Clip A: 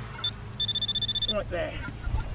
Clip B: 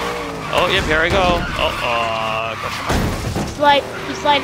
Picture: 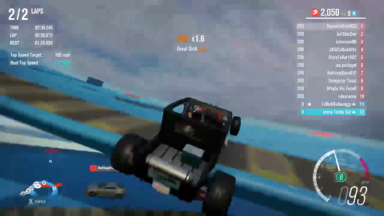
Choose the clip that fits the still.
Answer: B